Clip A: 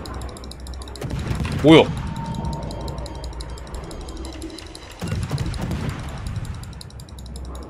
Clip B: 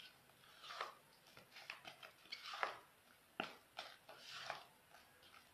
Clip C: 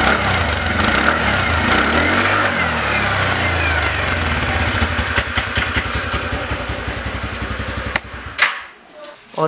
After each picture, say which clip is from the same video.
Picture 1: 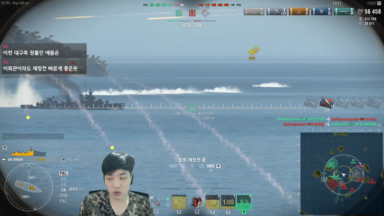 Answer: A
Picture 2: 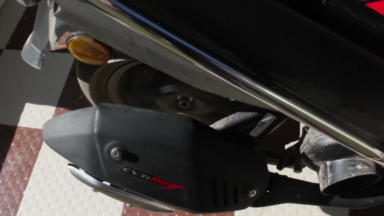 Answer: C